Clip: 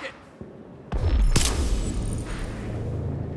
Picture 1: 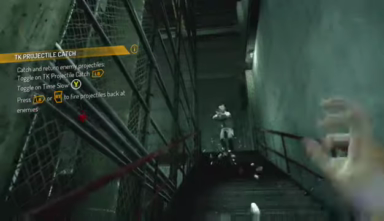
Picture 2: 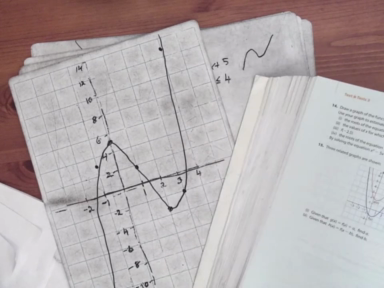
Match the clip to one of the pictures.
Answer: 1